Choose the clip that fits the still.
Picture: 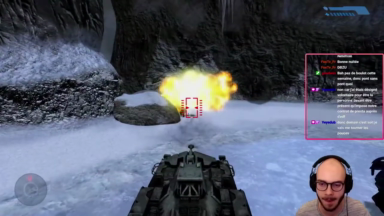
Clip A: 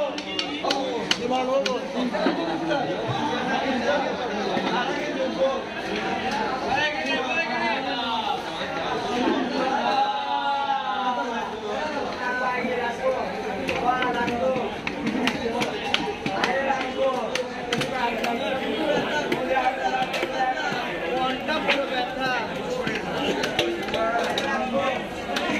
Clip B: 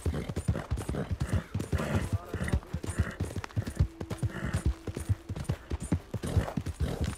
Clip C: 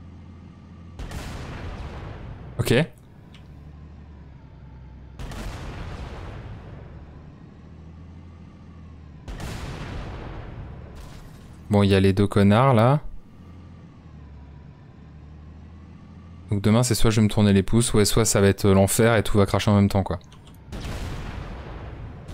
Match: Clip C